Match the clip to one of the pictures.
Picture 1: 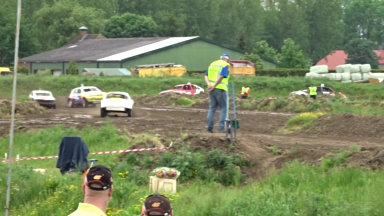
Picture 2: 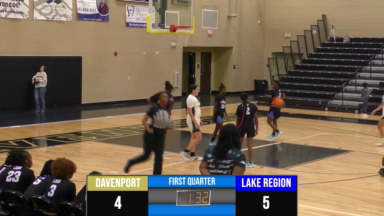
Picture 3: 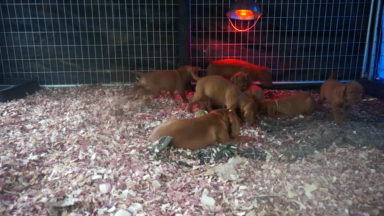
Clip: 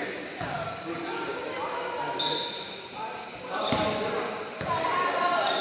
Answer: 2